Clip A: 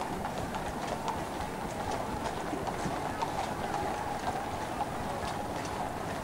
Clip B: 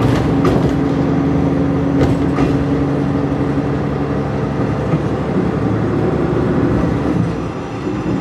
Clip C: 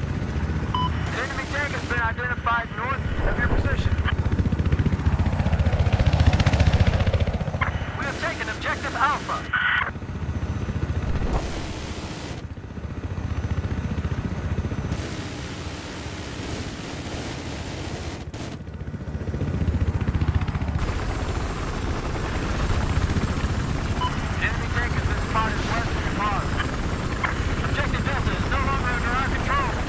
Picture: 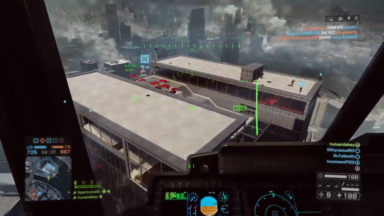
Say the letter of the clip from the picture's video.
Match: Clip C